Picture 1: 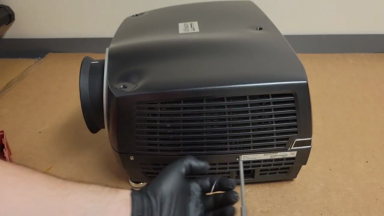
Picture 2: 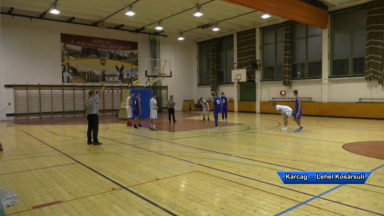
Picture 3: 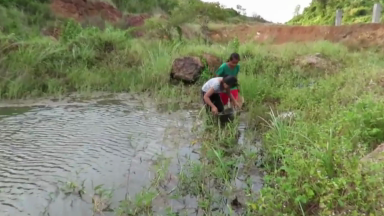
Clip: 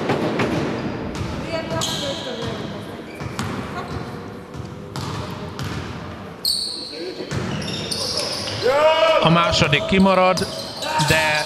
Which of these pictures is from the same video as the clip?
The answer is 2